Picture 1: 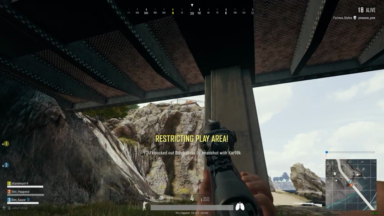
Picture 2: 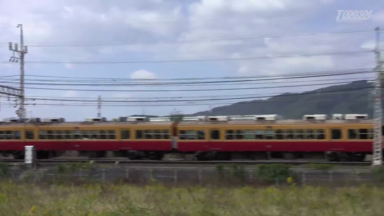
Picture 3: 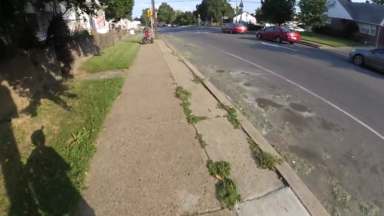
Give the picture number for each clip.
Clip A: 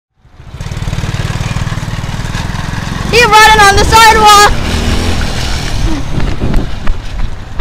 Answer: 3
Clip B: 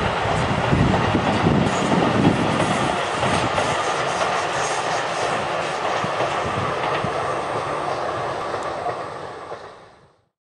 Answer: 2